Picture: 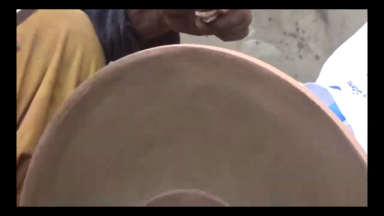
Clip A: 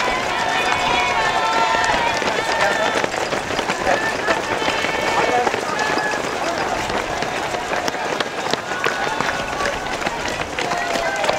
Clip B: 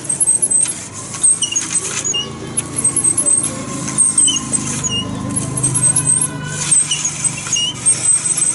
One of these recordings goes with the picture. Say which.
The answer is B